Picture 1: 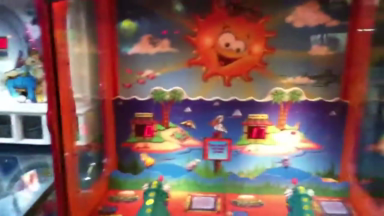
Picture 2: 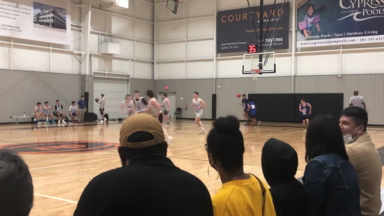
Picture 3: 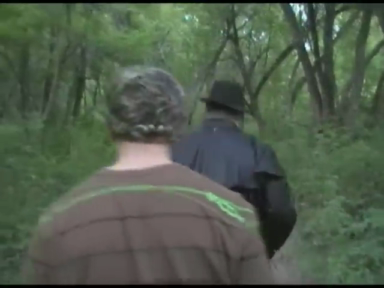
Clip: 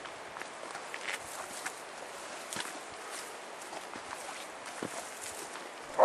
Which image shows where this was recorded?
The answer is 3